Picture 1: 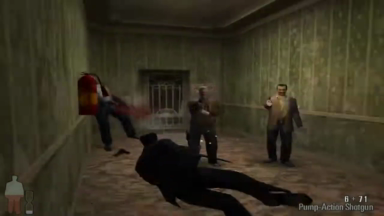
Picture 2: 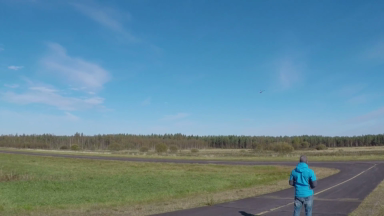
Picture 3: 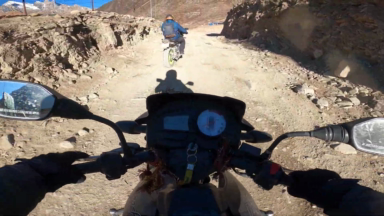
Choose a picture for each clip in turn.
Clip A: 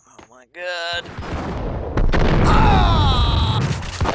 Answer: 1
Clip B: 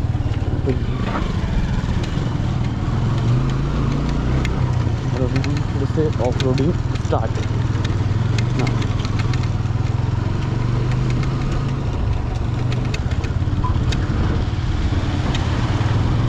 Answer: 3